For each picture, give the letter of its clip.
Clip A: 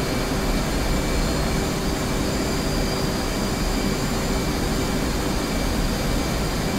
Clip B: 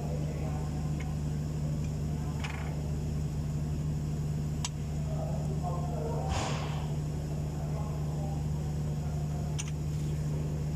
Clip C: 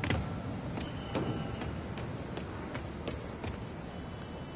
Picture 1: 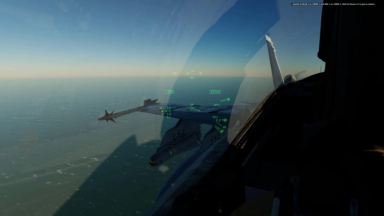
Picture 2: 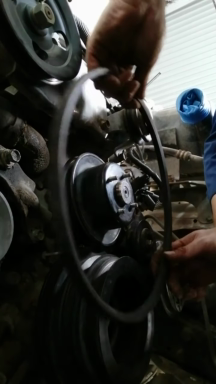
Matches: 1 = A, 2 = B